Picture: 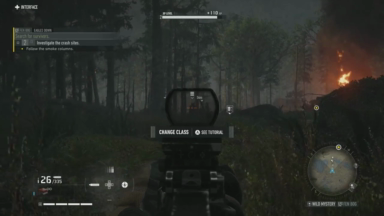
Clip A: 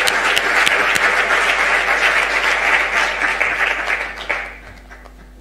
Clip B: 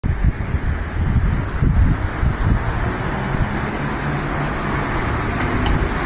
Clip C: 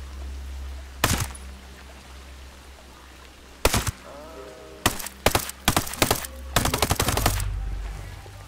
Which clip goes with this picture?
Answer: C